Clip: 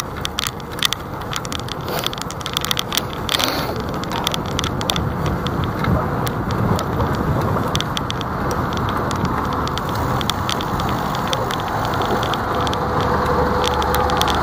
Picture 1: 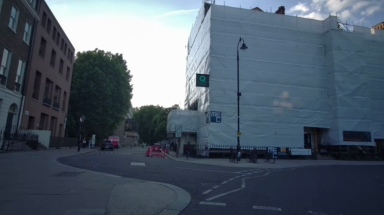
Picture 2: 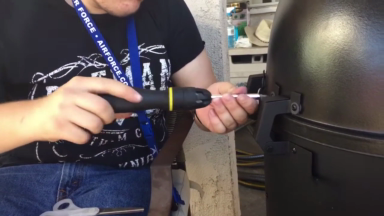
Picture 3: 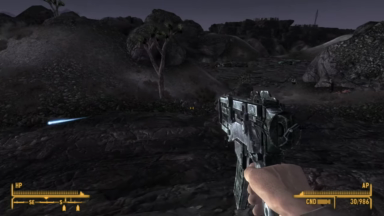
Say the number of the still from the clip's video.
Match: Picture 1